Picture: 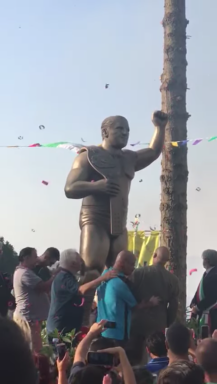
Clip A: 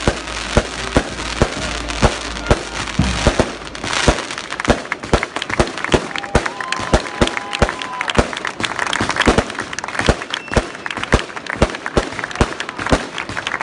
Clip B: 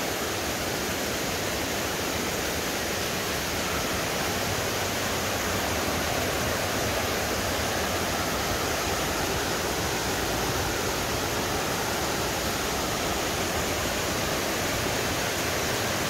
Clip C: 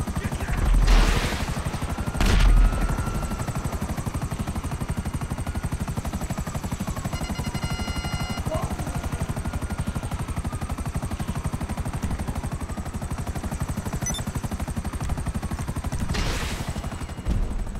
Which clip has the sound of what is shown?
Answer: A